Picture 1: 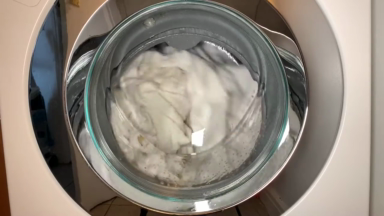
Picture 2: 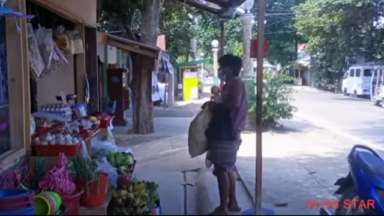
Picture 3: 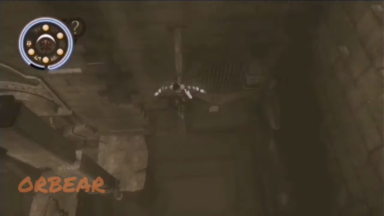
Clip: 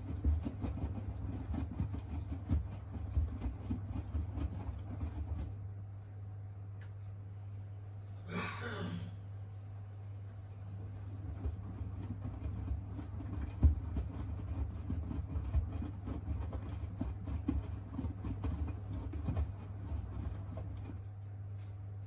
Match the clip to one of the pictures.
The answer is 1